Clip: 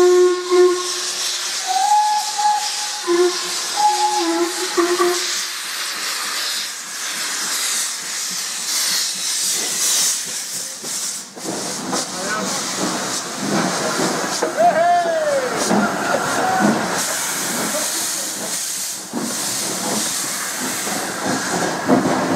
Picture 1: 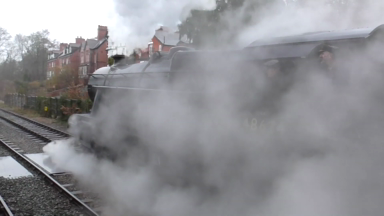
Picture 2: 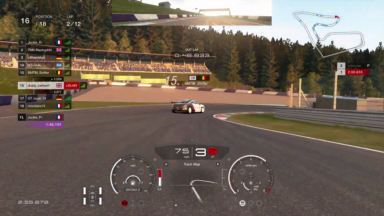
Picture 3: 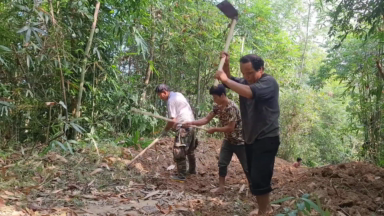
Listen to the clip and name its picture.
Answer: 1